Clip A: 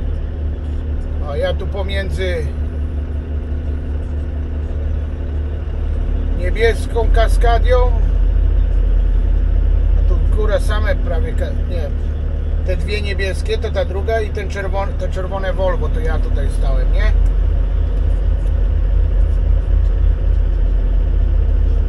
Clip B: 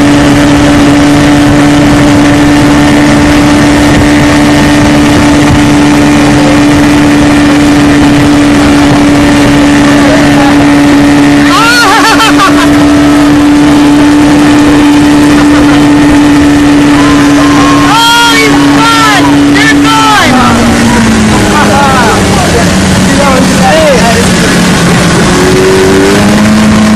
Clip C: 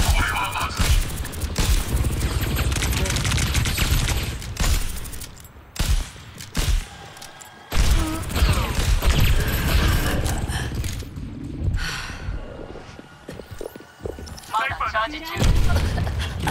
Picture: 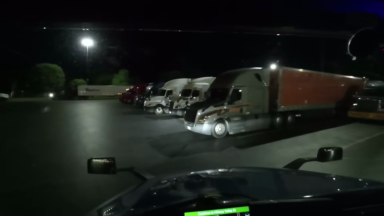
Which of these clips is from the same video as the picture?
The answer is A